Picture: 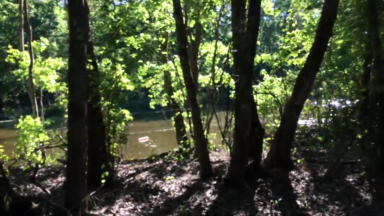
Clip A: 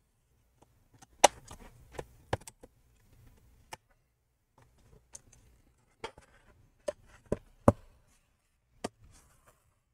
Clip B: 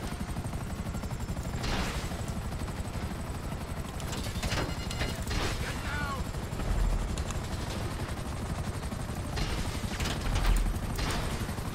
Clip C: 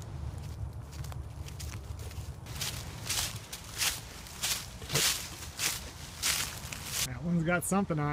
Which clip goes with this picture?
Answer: C